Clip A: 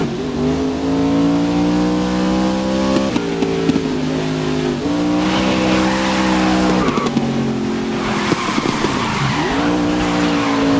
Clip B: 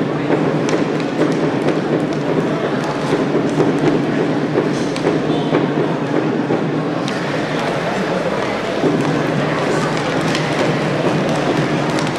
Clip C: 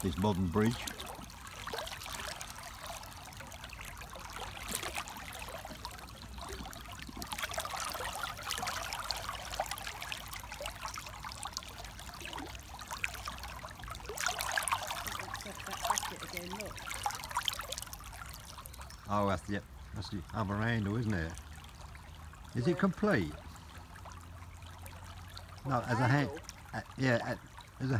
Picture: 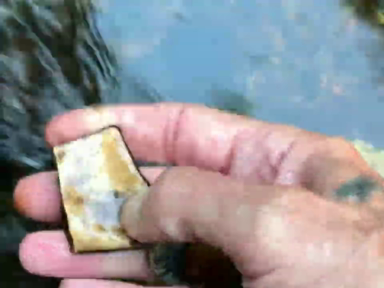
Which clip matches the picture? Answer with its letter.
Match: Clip C